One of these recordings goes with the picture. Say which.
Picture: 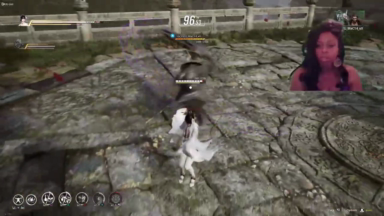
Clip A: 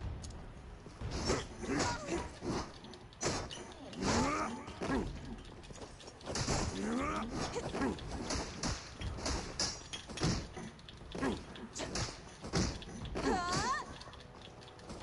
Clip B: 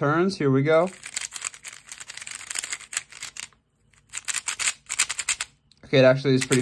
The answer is A